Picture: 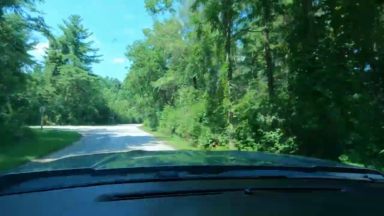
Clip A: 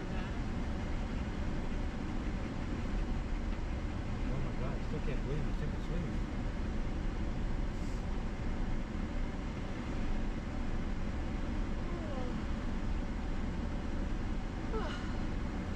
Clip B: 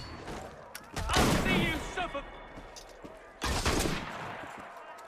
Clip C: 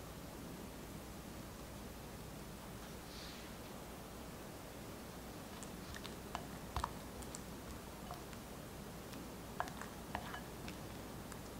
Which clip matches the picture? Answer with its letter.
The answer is A